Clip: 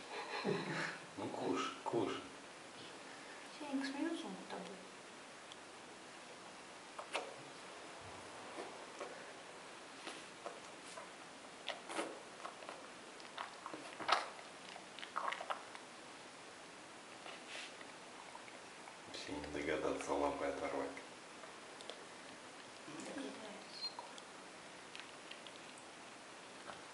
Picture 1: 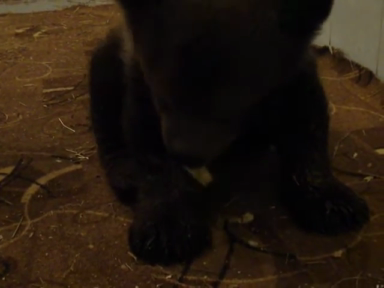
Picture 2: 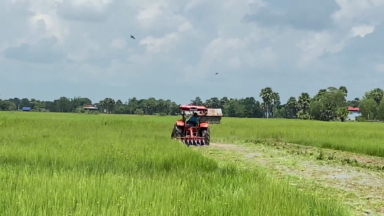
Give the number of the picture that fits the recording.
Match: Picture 1